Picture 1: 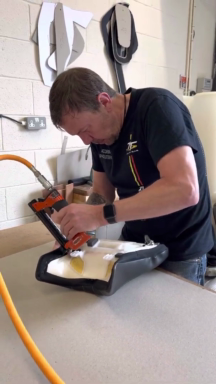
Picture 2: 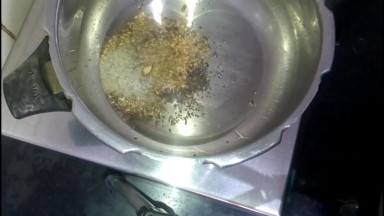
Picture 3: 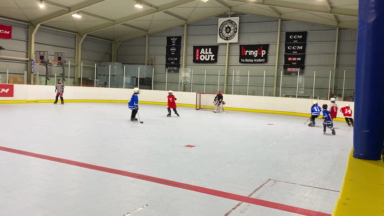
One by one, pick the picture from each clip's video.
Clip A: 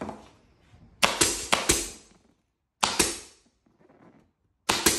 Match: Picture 1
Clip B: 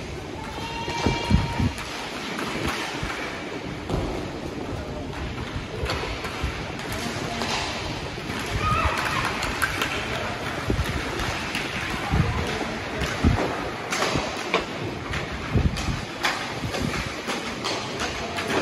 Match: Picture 3